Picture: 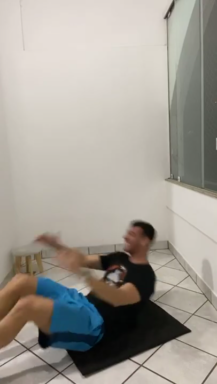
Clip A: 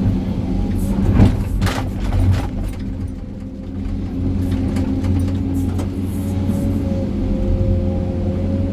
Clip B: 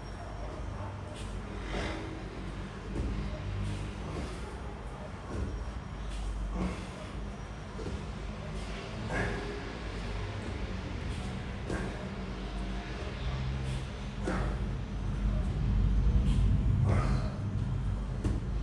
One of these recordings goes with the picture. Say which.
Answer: B